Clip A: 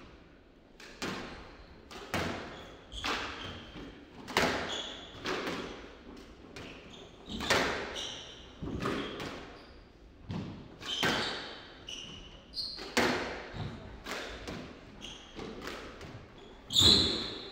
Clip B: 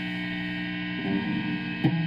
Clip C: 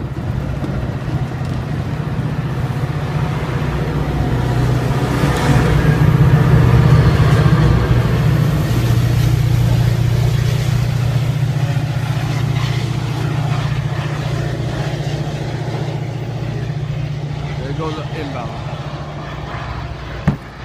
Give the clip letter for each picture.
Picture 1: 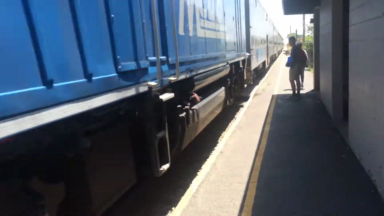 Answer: C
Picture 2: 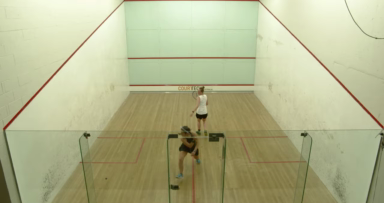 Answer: A